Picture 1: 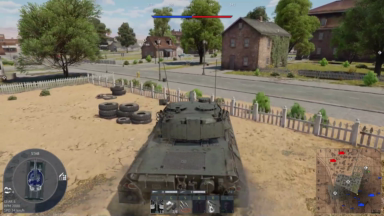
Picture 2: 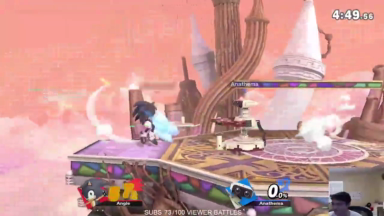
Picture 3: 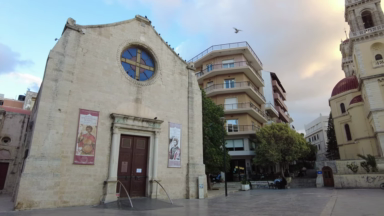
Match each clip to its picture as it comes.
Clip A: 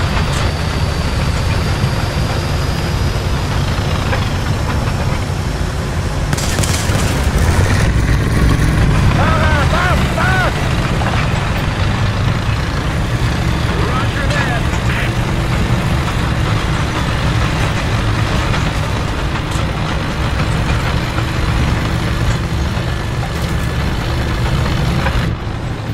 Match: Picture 1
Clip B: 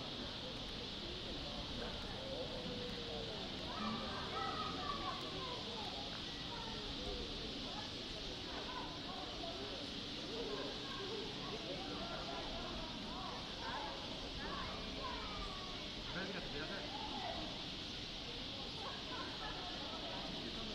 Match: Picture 3